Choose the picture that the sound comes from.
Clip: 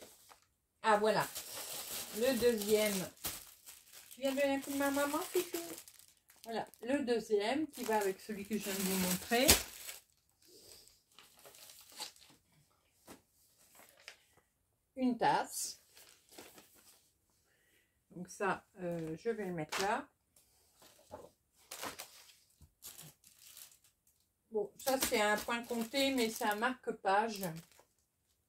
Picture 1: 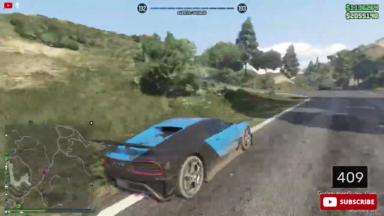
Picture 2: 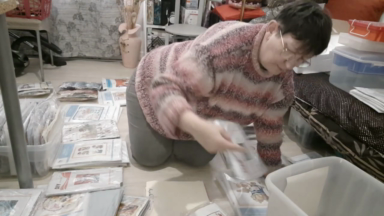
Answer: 2